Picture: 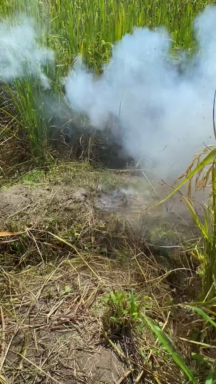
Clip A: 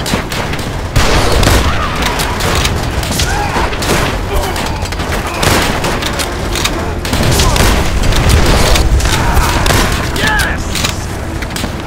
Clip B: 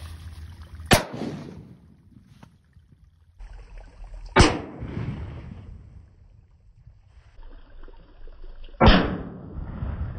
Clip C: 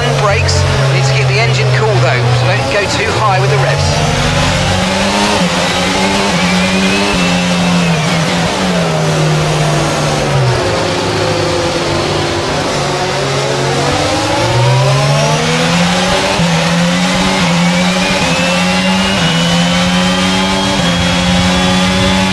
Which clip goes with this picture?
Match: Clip B